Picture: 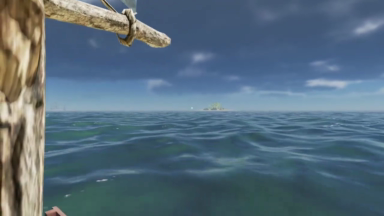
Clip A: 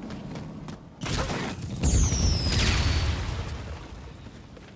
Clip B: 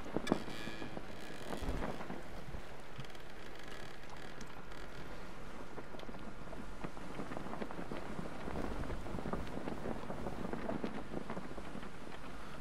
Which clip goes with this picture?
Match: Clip B